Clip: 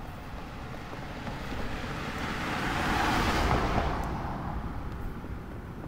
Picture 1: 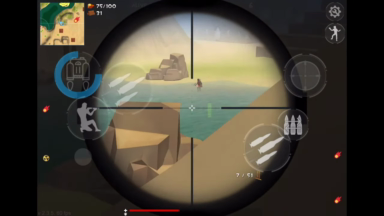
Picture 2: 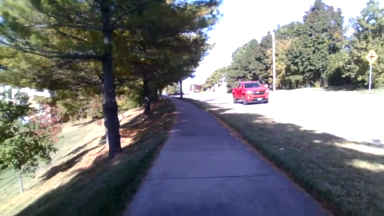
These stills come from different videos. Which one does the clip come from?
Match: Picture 2